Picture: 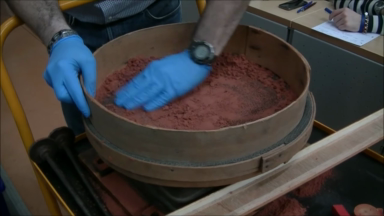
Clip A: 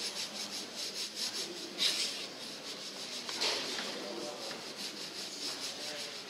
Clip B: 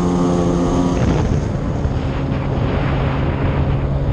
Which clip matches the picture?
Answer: A